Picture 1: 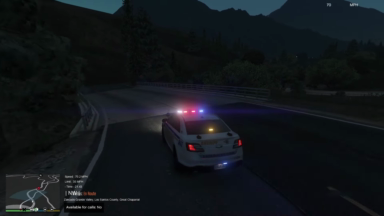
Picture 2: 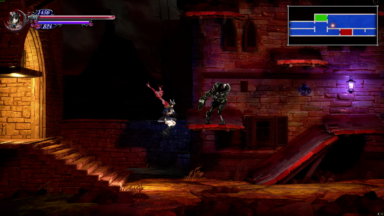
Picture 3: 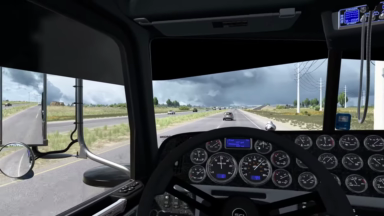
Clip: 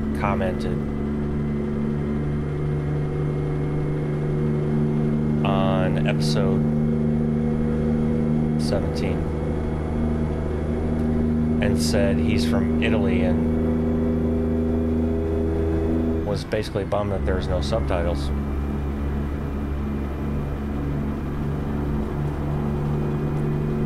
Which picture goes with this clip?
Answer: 3